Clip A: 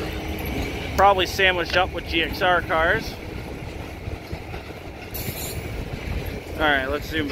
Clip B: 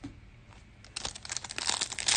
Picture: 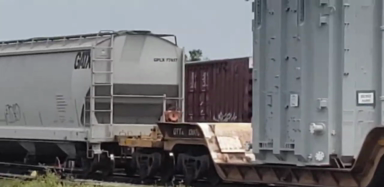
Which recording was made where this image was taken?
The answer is A